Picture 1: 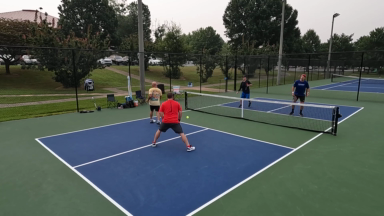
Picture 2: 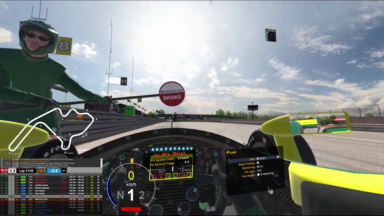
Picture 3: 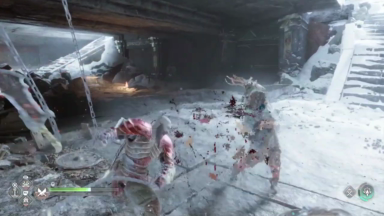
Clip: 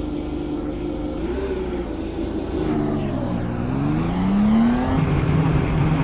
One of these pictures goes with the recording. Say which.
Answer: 2